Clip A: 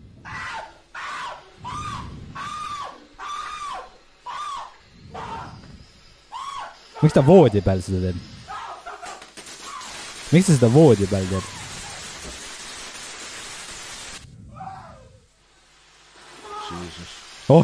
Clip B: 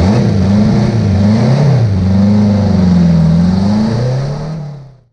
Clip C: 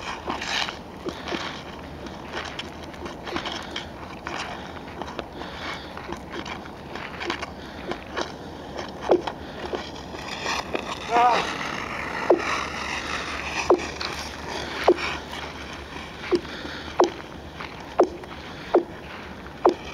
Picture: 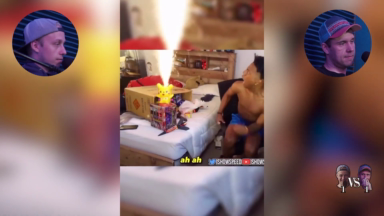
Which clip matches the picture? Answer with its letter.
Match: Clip A